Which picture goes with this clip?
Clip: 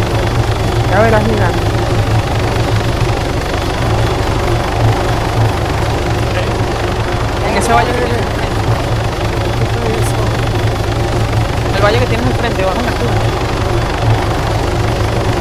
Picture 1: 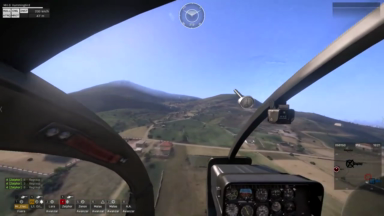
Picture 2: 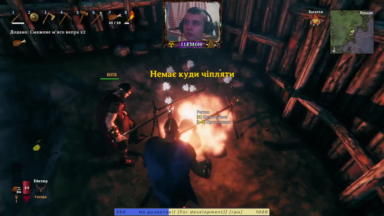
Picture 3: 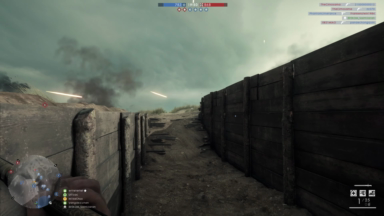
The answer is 1